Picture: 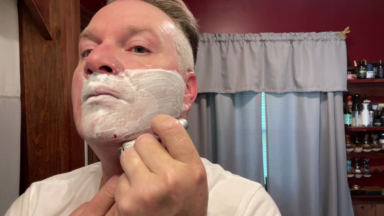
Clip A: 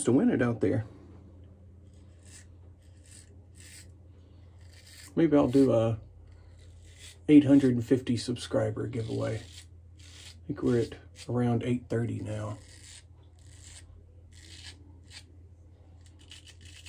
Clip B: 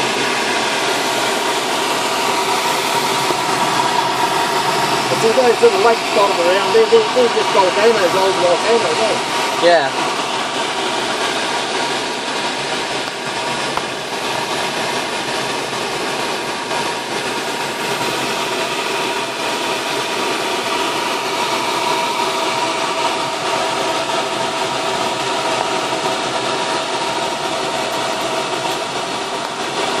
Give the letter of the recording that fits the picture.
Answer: A